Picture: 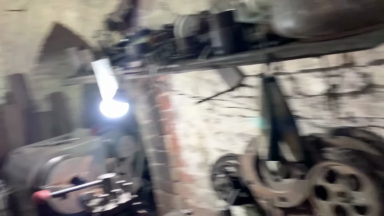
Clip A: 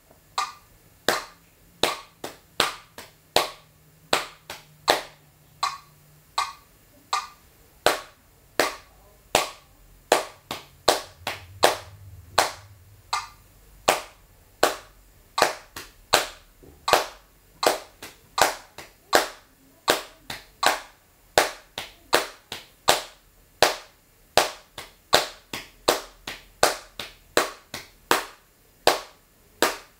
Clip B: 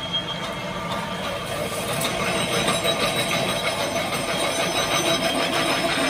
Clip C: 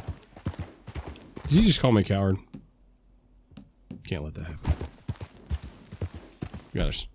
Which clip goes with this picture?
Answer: B